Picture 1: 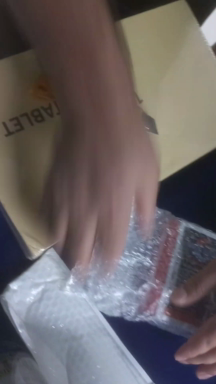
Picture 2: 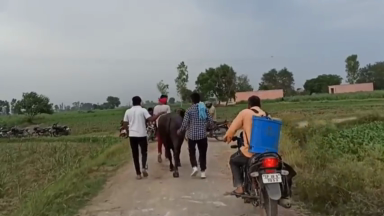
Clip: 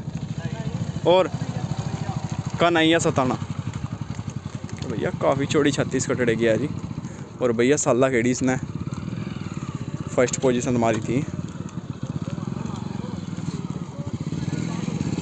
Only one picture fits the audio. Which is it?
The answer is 2